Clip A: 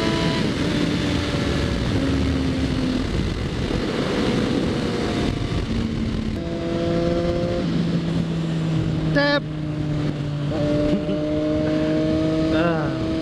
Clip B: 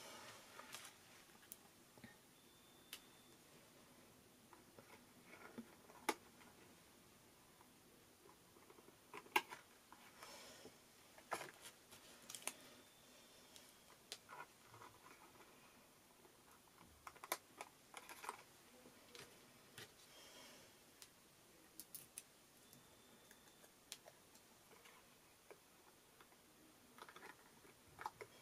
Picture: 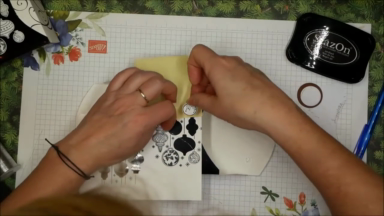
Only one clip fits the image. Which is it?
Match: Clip B